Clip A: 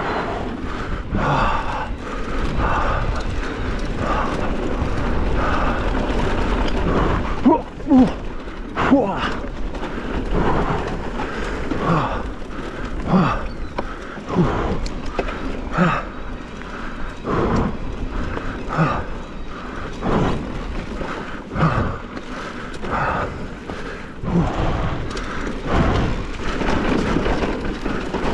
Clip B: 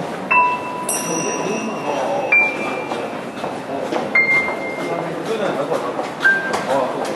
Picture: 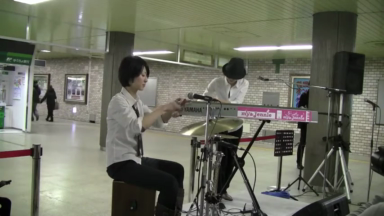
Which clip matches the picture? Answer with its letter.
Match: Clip B